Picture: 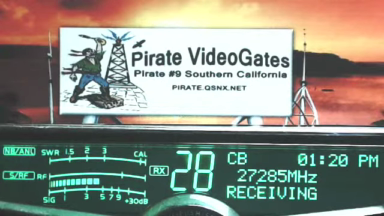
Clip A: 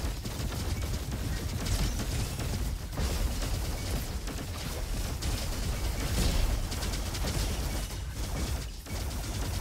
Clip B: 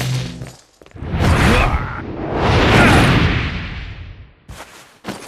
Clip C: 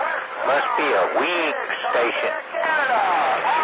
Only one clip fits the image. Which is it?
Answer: C